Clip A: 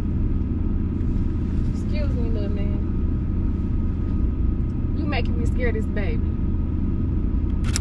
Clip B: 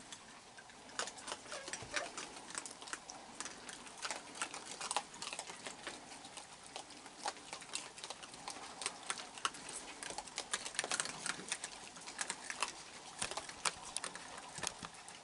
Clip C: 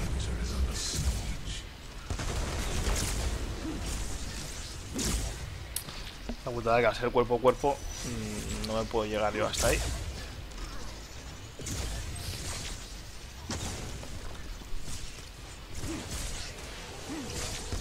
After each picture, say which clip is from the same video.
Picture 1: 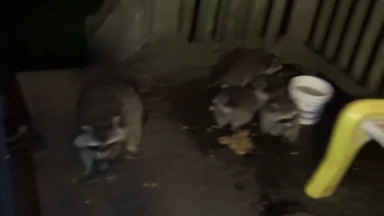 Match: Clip B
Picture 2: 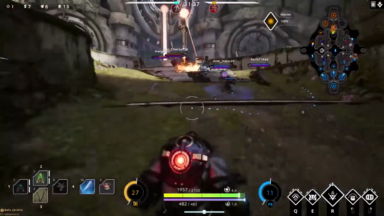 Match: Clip C